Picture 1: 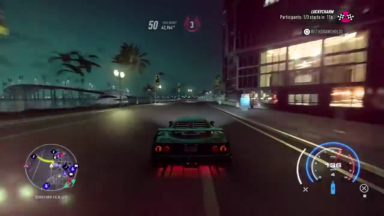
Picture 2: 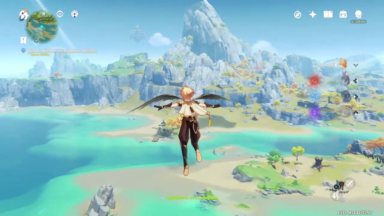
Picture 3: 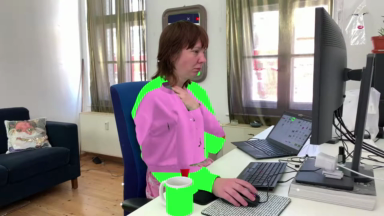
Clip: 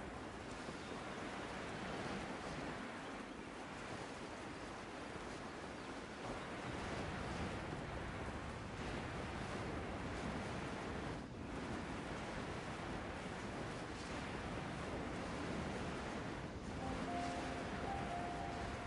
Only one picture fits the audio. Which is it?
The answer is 2